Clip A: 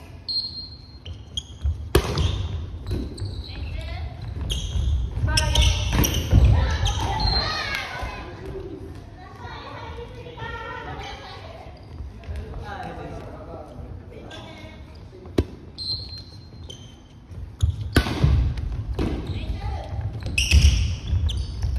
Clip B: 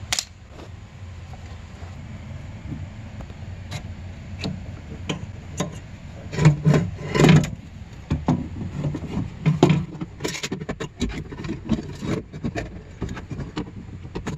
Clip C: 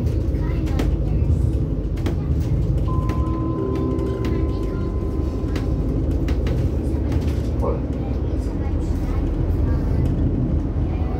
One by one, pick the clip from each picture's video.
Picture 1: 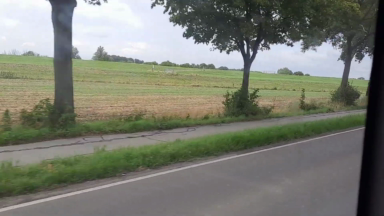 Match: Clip C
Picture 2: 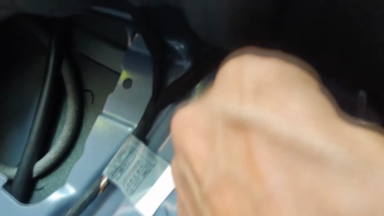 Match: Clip B